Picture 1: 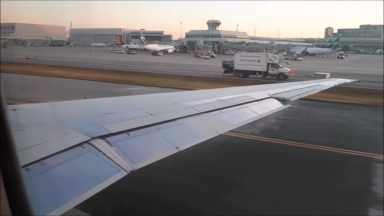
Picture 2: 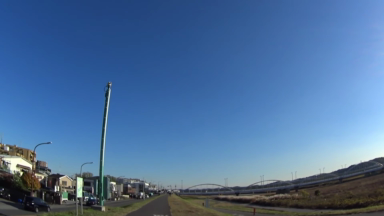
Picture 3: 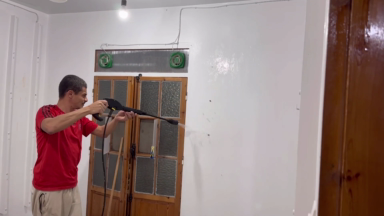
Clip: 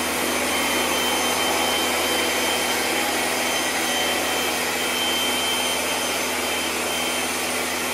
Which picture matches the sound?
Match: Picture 3